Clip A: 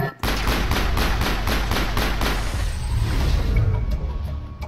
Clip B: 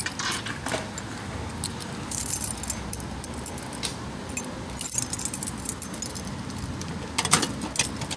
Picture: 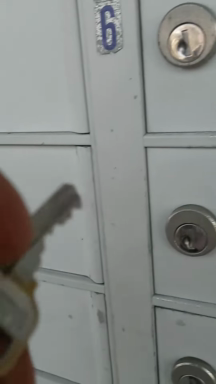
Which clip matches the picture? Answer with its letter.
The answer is B